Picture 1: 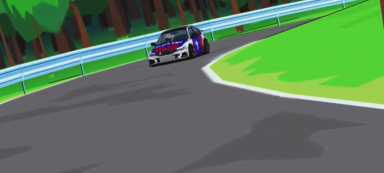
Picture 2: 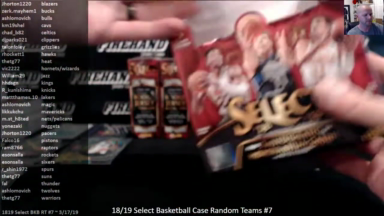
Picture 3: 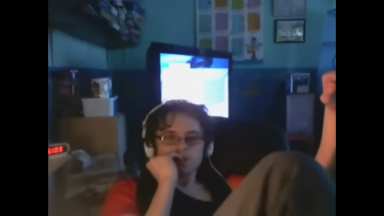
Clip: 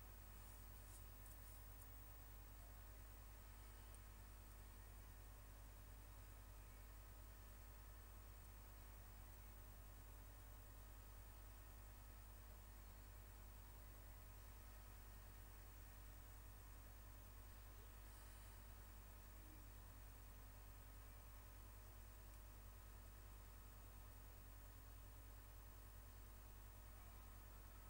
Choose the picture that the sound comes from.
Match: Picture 3